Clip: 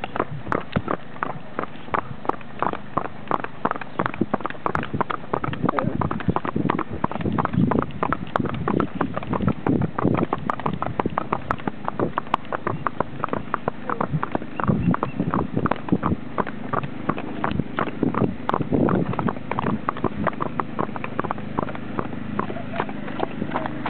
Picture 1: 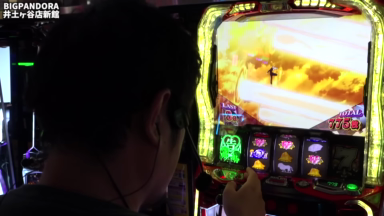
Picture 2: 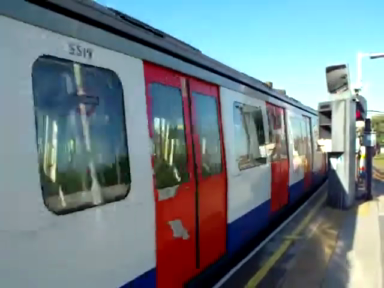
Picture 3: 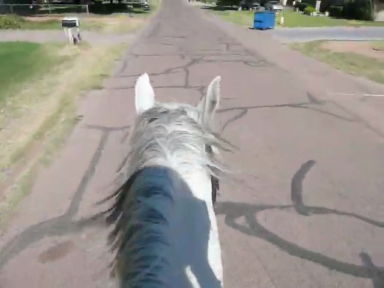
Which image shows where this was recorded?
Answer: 3